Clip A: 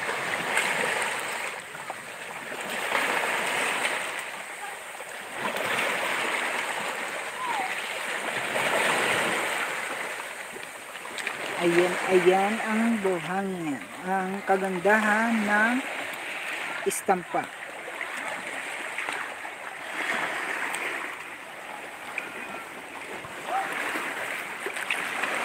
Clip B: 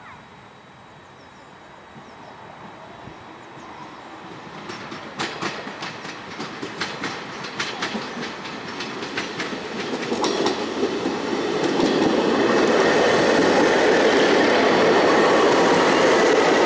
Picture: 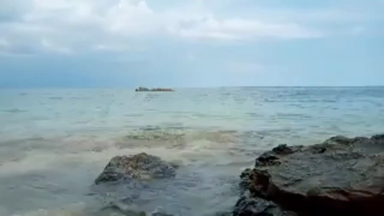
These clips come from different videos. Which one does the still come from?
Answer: A